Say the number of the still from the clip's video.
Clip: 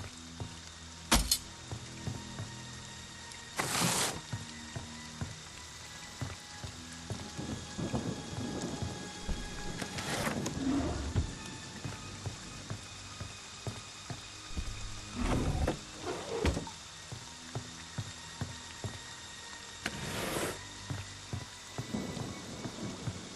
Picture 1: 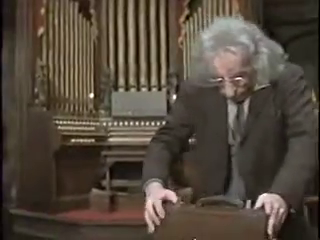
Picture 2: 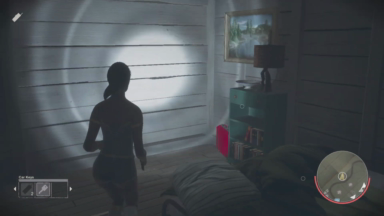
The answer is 2